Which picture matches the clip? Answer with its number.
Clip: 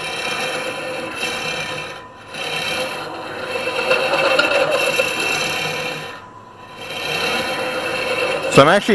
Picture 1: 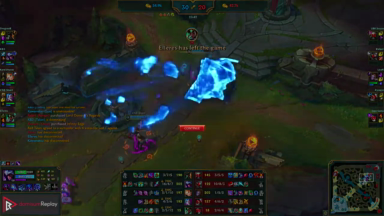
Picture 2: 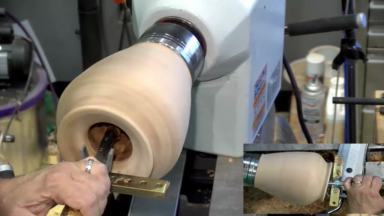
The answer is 2